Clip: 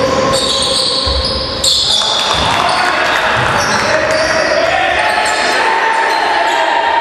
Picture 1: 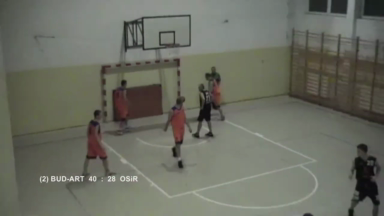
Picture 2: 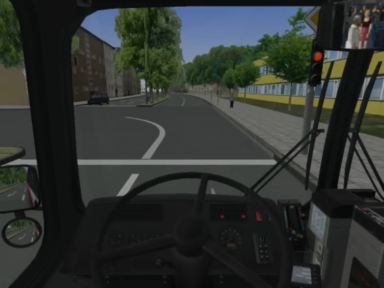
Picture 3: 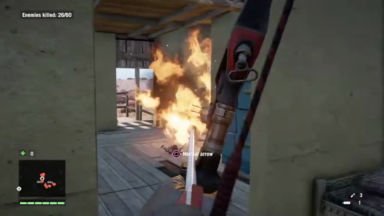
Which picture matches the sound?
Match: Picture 1